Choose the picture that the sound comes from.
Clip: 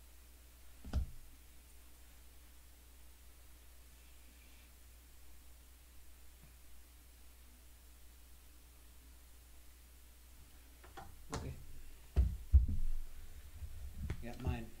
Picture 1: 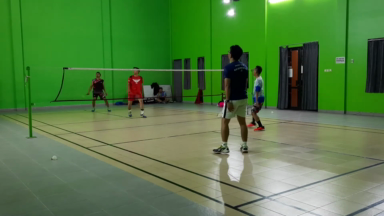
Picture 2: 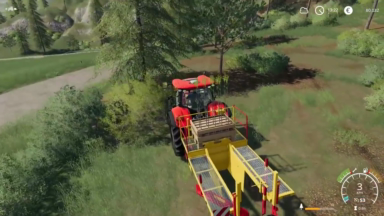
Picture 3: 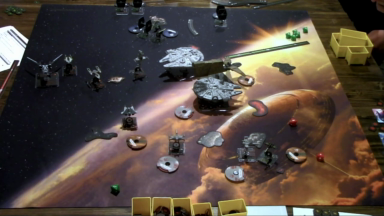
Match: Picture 3